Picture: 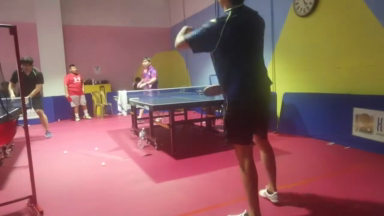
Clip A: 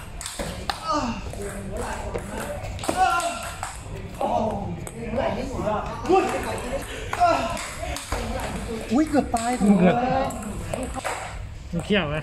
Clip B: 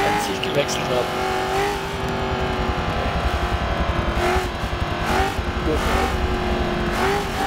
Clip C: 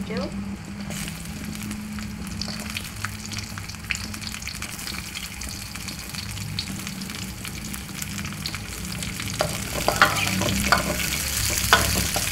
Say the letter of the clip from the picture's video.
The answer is A